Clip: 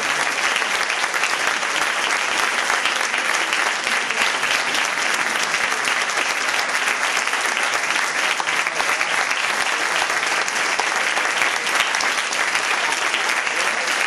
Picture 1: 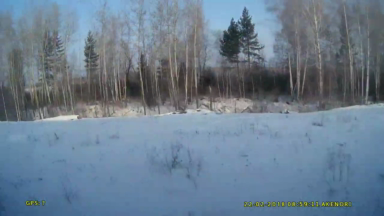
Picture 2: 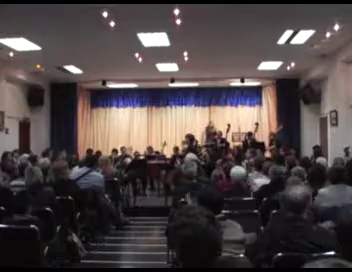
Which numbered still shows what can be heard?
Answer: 2